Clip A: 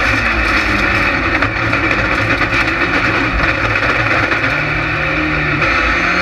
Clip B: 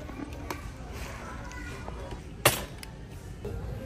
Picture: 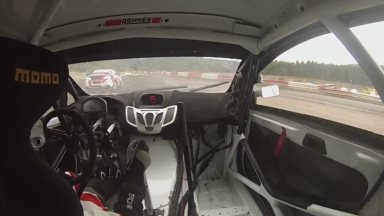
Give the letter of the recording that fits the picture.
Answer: A